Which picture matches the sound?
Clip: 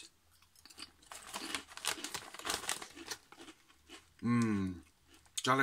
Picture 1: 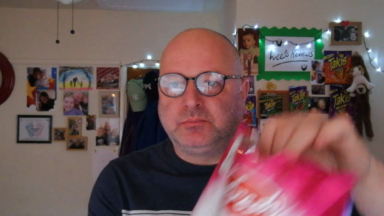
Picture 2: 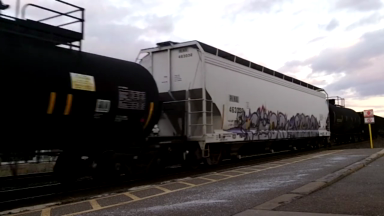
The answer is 1